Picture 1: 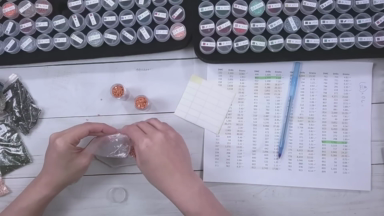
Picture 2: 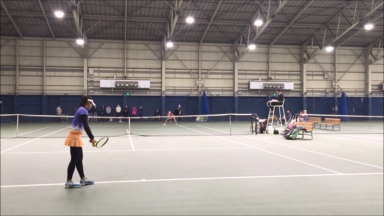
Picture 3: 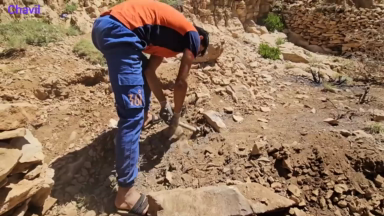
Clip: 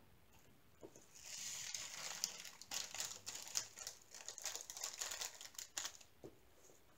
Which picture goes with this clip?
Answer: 1